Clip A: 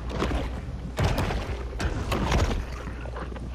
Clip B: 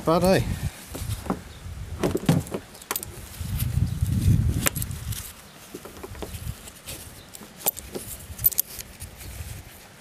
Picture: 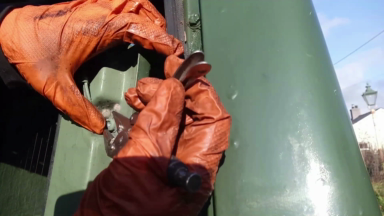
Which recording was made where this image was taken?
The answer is B